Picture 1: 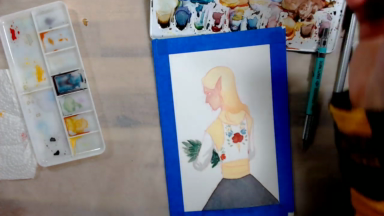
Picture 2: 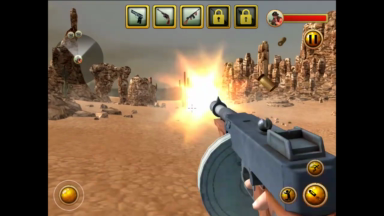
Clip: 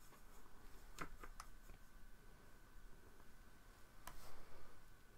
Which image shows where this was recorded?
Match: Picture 1